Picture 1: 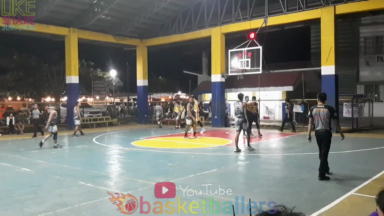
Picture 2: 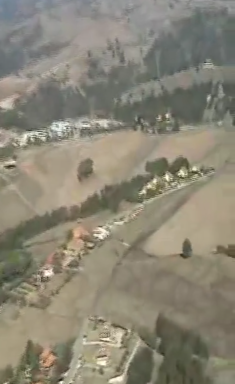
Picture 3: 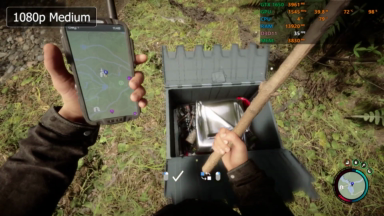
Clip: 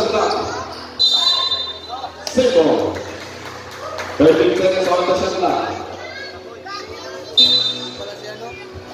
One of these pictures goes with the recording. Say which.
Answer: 1